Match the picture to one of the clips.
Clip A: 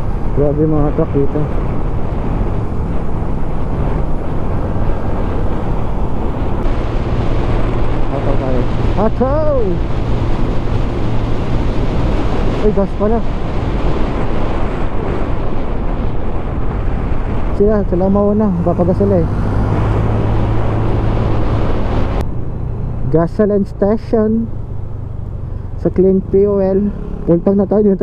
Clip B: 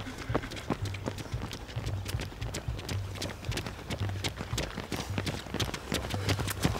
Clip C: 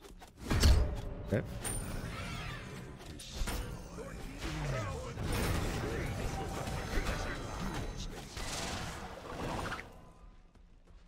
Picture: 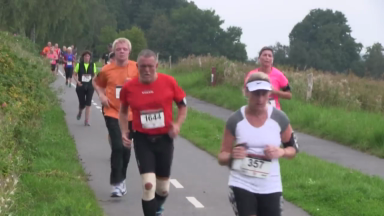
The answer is B